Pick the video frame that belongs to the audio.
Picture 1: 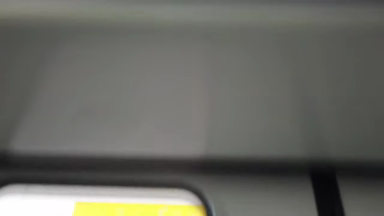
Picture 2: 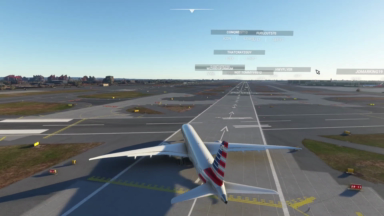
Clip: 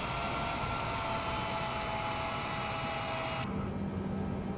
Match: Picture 2